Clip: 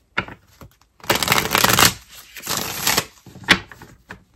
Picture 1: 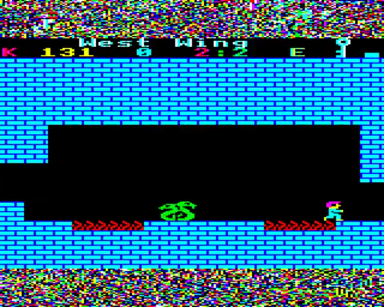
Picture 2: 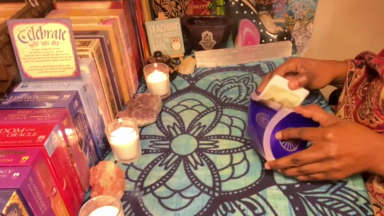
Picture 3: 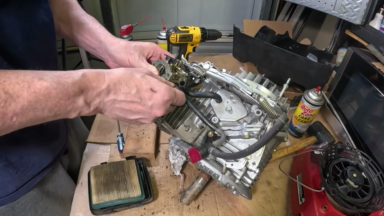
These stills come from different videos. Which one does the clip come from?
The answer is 2